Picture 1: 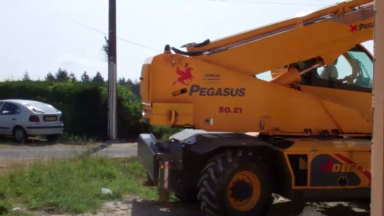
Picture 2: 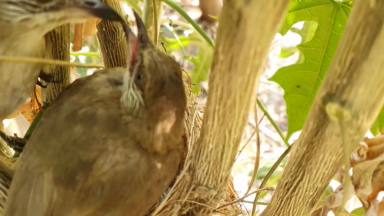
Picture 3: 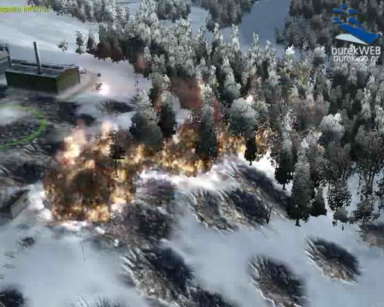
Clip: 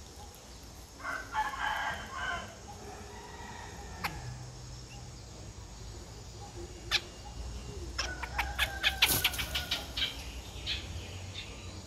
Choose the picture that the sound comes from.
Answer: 2